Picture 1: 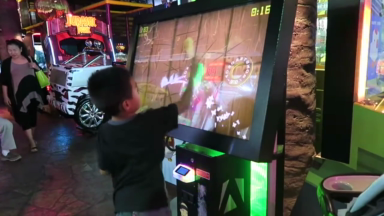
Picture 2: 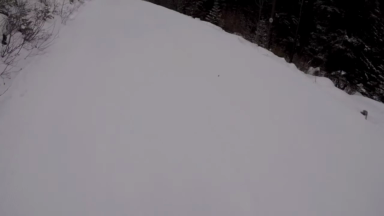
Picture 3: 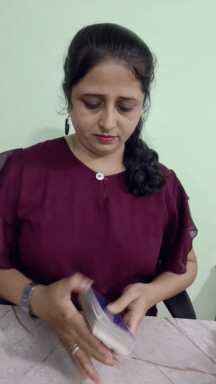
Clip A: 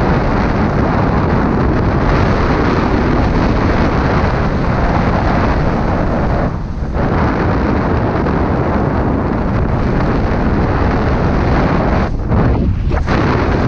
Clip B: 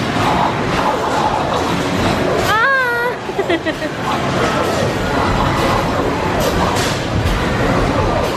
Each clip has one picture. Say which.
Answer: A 2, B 1